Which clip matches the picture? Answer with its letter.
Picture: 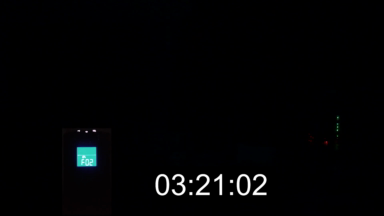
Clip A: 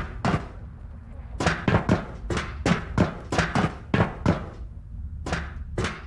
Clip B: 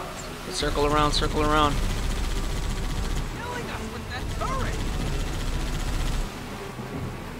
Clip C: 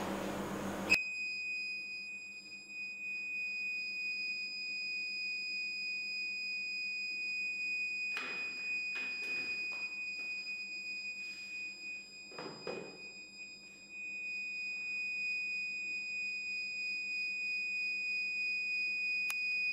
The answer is C